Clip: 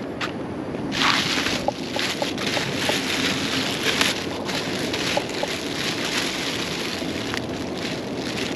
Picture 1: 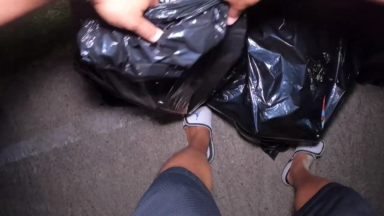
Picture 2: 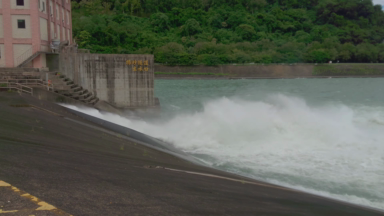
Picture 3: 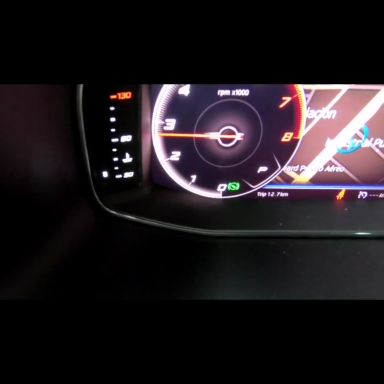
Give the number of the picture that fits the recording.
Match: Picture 1